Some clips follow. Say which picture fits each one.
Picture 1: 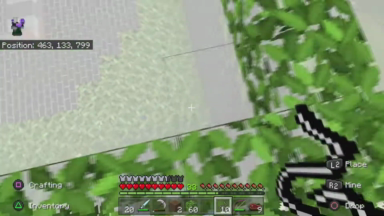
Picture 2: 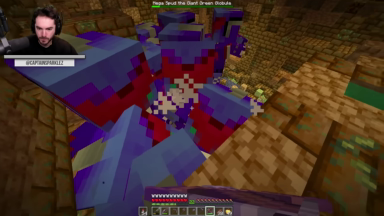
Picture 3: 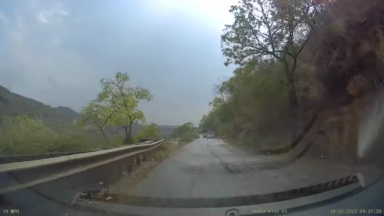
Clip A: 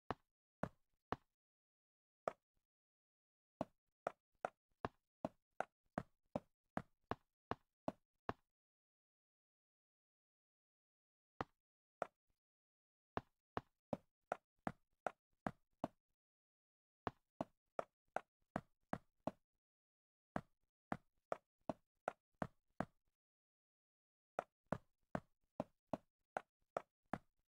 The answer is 1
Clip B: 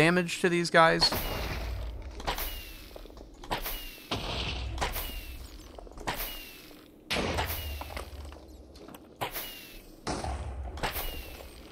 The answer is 2